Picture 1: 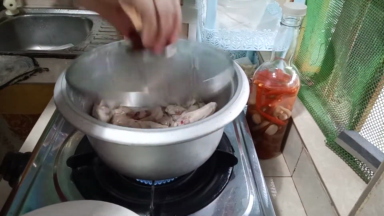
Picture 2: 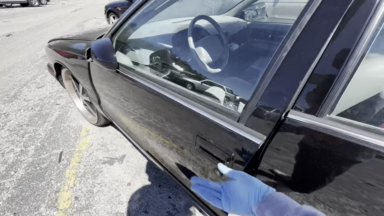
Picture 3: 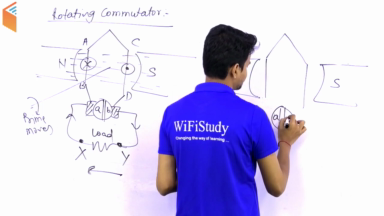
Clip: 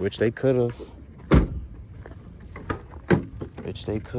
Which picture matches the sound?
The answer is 2